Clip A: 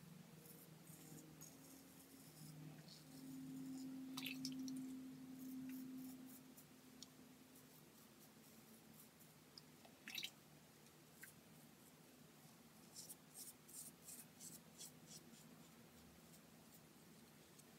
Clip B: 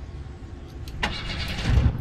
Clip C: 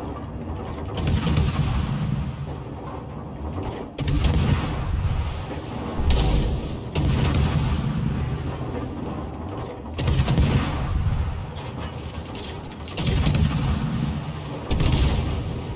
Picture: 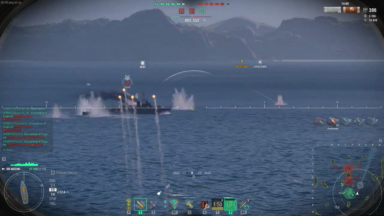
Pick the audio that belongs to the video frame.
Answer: C